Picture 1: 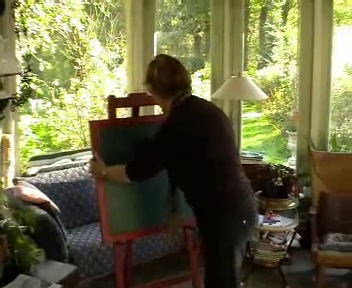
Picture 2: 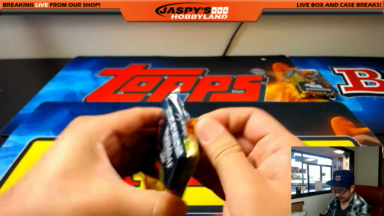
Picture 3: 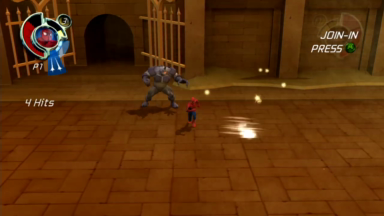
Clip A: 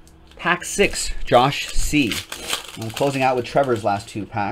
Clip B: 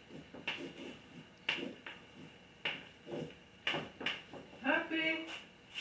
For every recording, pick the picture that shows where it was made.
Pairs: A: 2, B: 1